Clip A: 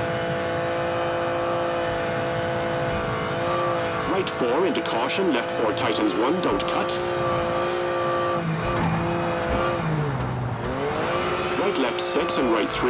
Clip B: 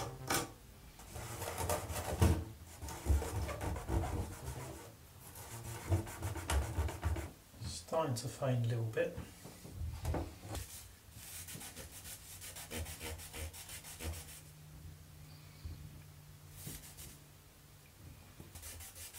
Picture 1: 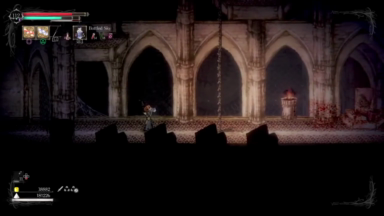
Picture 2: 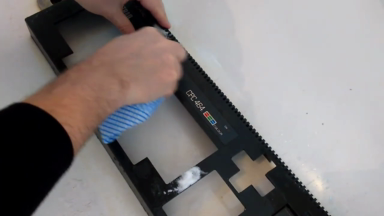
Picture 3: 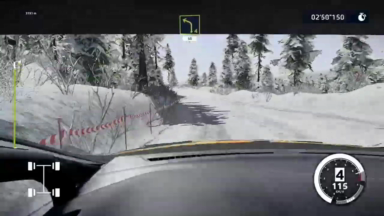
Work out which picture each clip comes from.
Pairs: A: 3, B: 2